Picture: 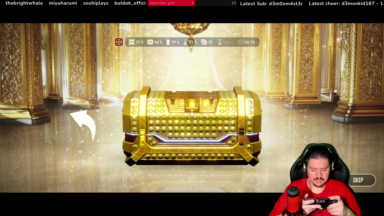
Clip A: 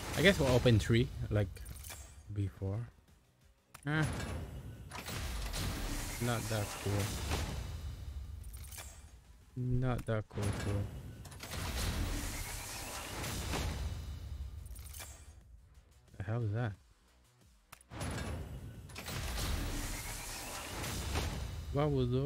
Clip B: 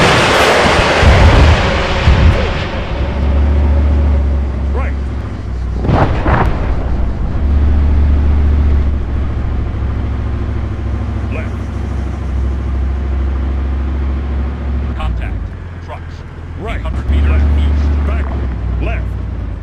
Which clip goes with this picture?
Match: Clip A